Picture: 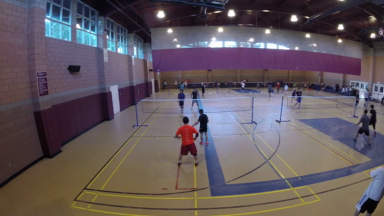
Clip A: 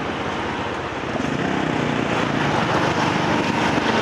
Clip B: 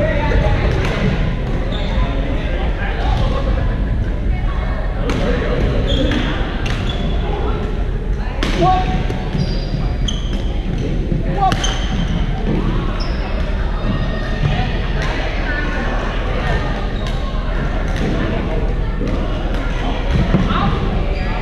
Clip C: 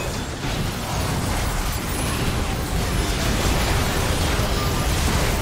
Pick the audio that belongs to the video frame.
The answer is B